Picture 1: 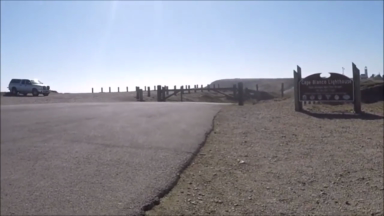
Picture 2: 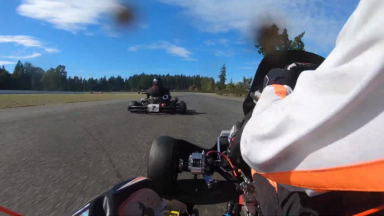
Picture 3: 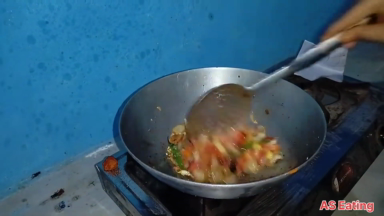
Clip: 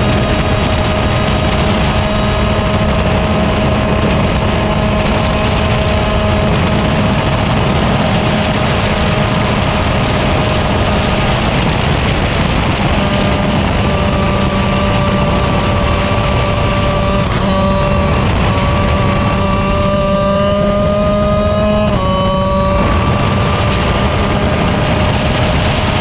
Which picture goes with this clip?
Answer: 2